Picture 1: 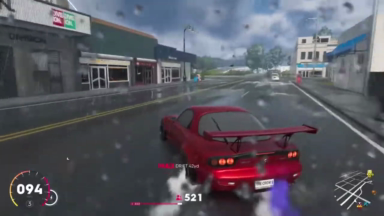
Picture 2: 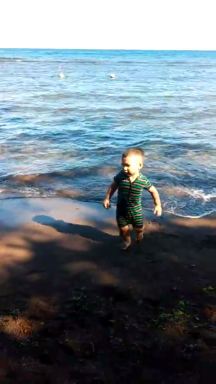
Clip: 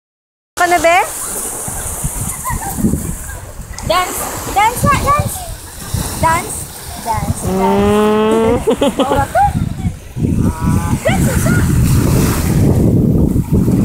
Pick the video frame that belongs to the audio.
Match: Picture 2